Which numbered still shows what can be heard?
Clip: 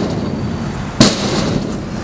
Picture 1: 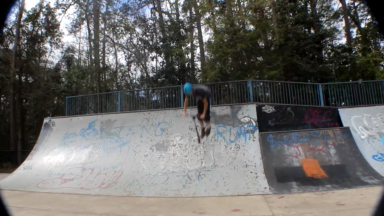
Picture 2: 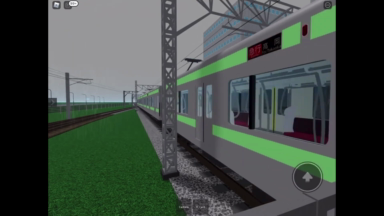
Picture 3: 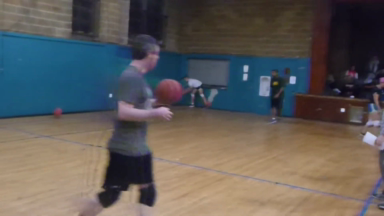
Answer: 1